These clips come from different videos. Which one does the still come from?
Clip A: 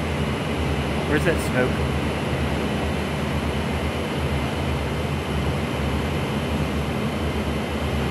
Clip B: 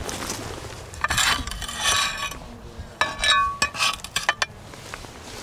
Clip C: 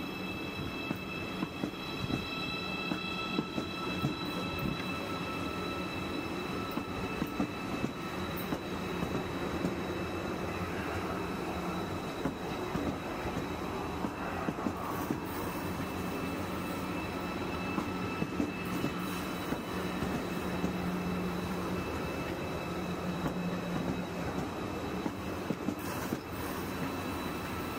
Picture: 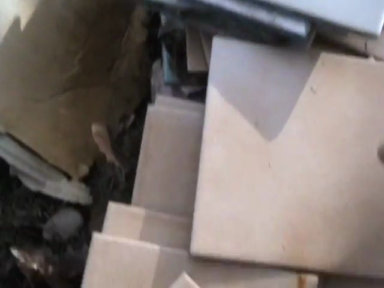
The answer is B